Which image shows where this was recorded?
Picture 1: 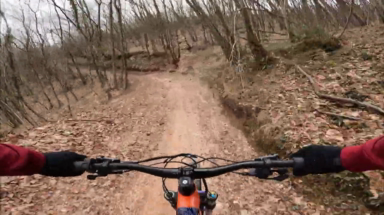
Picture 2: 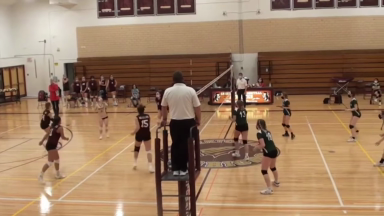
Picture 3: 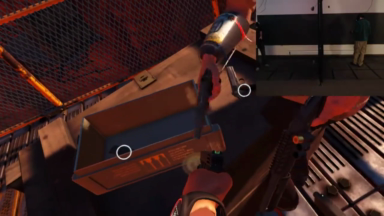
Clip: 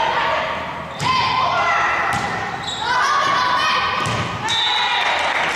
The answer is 2